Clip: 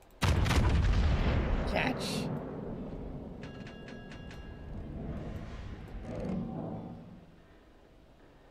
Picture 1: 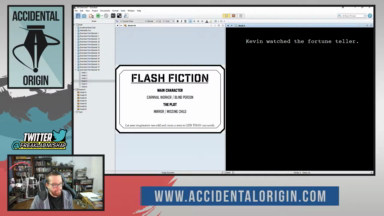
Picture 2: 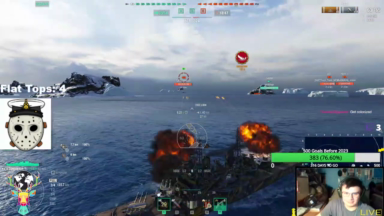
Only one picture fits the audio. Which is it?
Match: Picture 2